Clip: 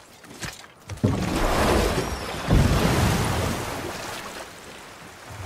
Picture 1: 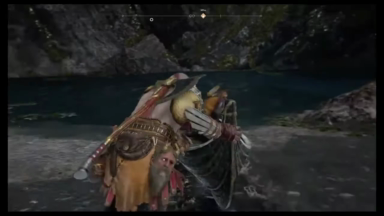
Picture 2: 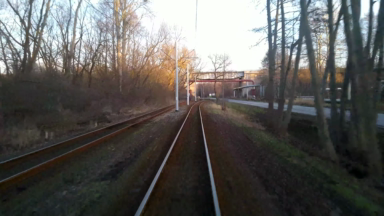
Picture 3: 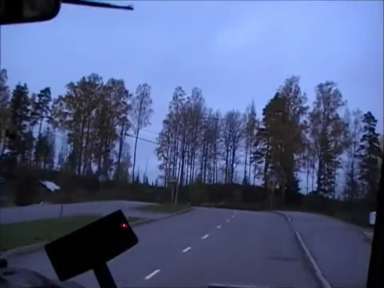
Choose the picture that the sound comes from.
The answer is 1